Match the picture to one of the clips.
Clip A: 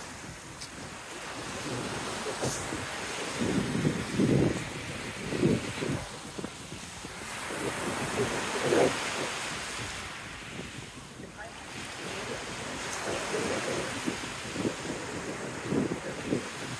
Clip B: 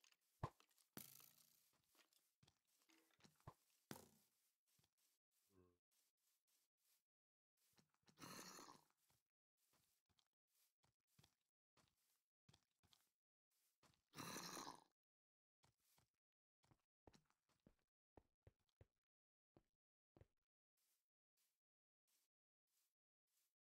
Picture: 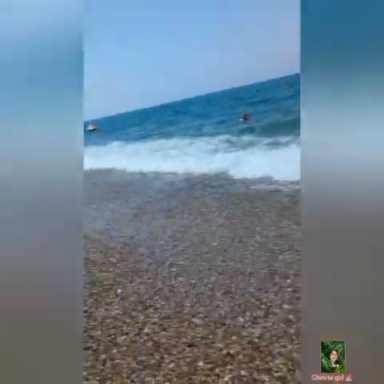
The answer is A